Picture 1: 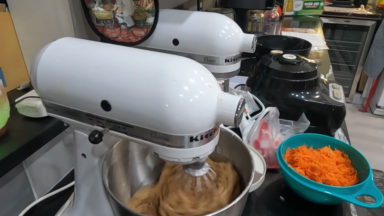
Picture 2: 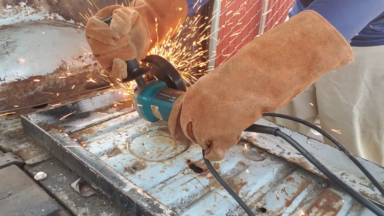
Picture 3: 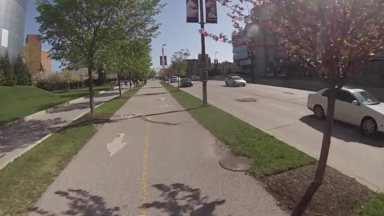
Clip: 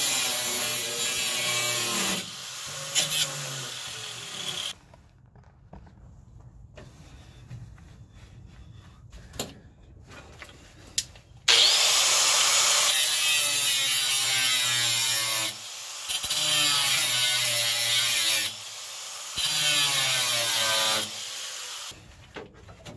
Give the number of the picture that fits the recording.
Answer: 2